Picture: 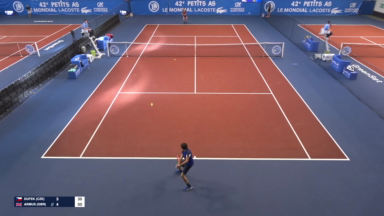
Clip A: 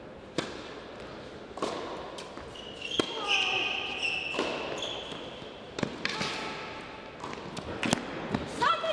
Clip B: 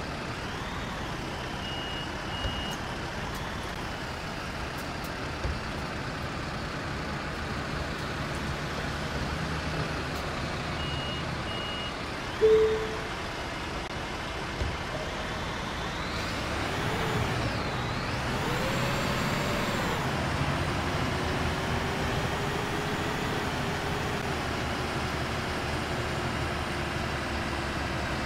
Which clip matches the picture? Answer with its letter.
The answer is A